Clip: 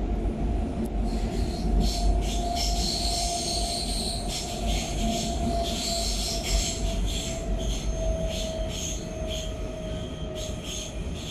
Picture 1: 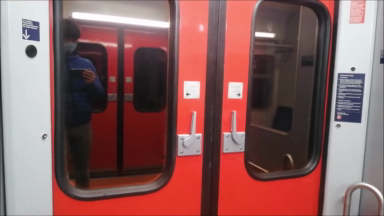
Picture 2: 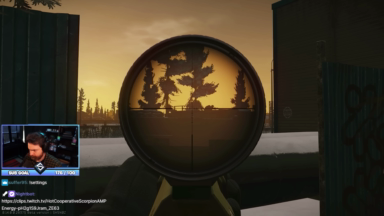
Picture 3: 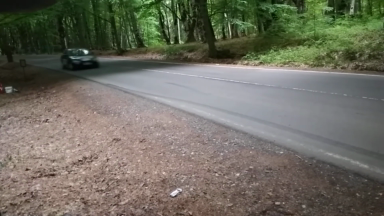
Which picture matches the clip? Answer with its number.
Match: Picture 1